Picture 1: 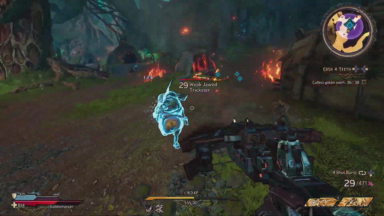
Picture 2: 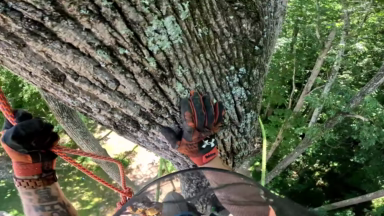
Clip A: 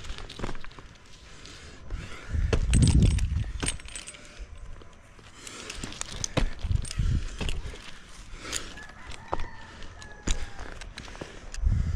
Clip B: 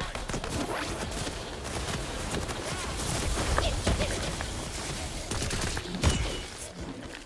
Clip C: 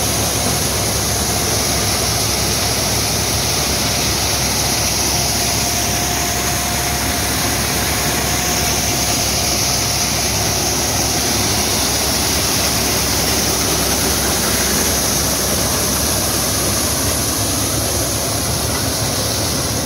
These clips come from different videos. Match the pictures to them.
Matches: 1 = B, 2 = A